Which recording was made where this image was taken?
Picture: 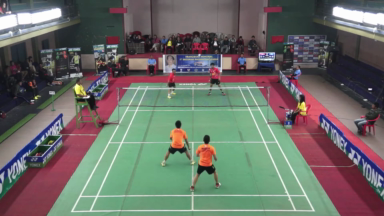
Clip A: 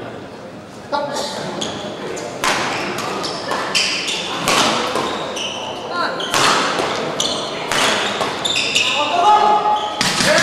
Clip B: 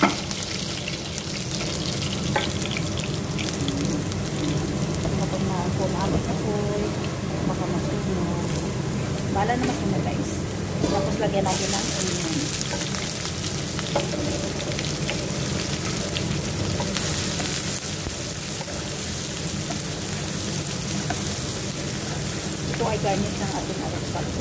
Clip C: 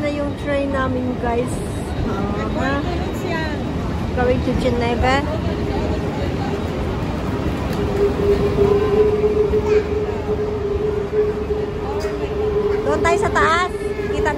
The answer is A